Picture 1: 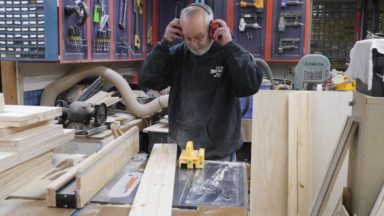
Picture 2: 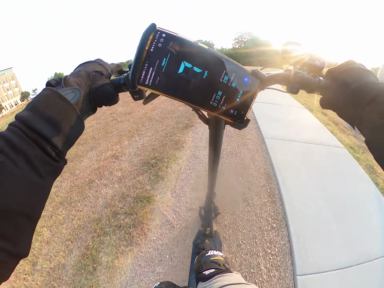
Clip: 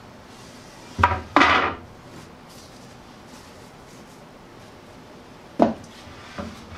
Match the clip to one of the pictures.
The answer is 1